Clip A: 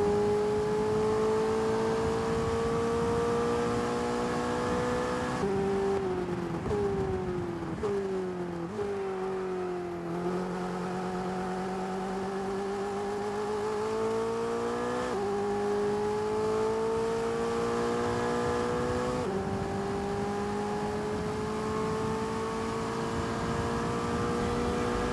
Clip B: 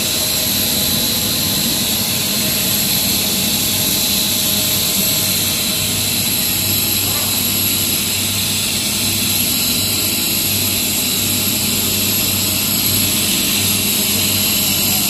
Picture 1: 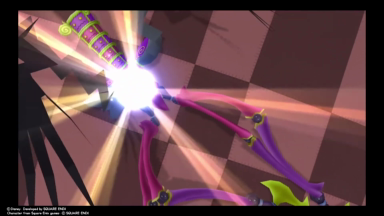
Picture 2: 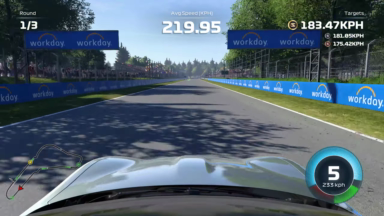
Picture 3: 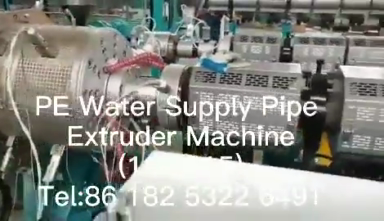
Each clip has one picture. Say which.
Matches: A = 2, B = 3